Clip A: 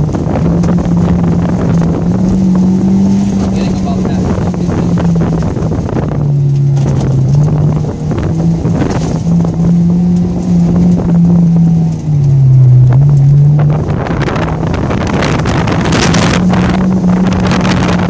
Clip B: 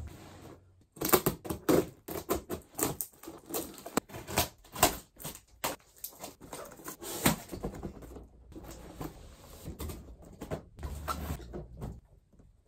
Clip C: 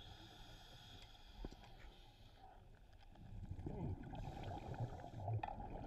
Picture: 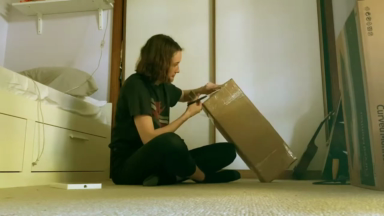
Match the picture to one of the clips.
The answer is B